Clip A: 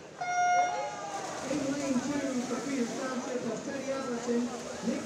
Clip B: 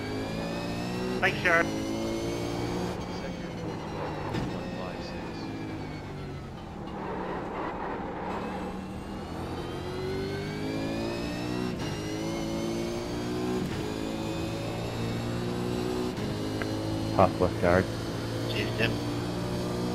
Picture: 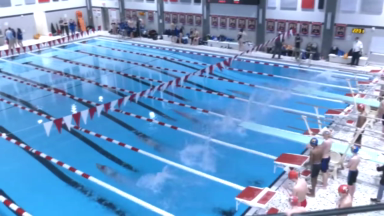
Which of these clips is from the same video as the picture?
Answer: A